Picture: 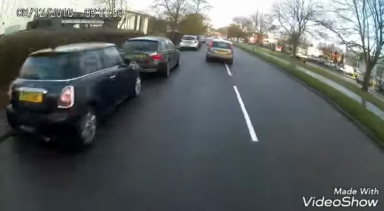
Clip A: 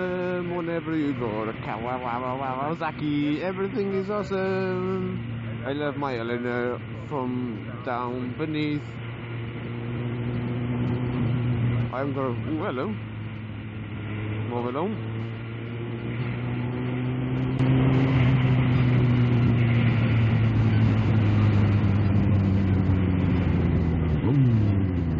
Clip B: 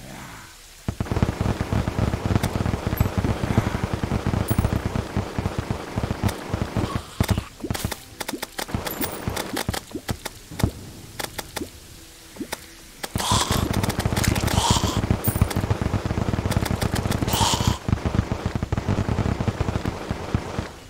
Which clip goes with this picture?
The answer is A